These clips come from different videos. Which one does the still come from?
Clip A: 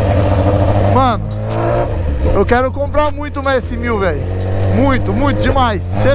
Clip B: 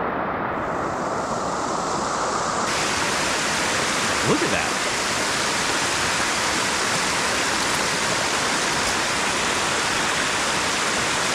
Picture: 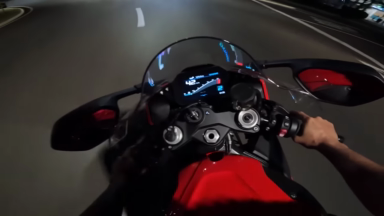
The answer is A